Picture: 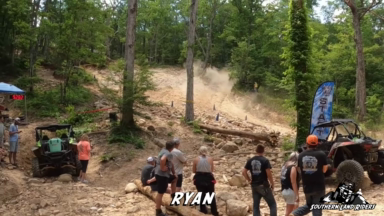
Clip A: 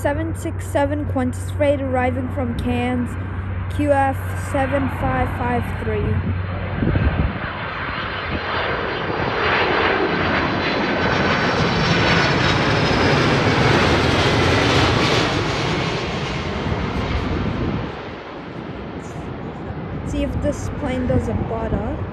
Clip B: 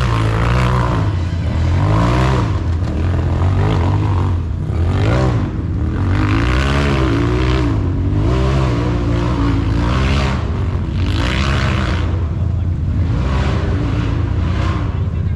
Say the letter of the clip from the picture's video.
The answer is B